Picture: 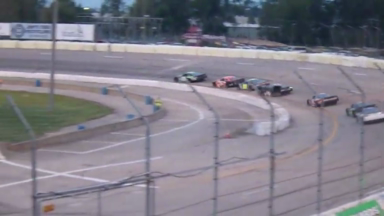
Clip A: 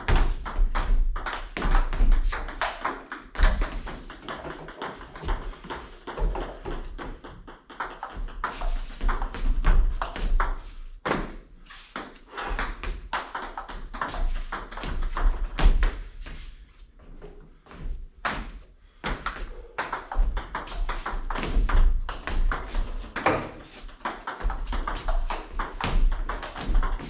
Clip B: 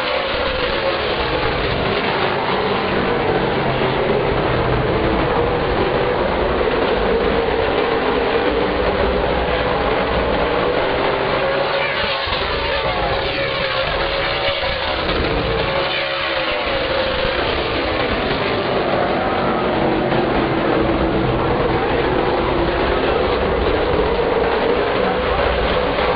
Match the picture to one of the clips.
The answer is B